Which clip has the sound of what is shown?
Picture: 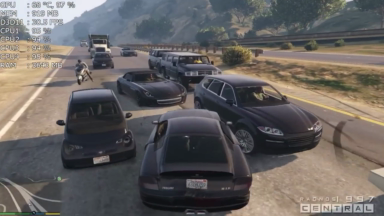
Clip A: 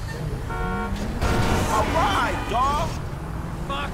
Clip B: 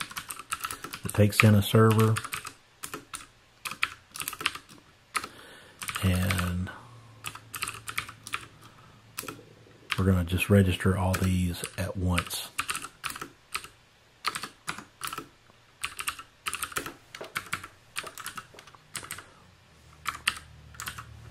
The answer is A